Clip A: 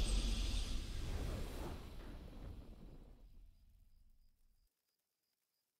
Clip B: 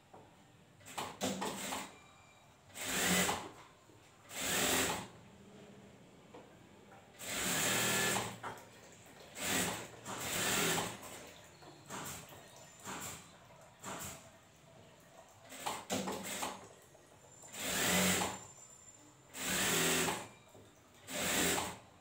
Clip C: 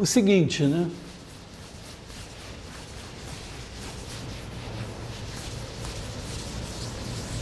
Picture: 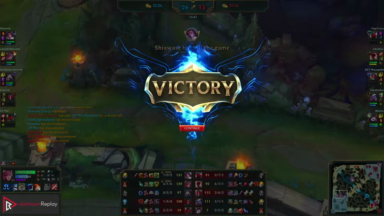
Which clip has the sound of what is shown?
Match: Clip A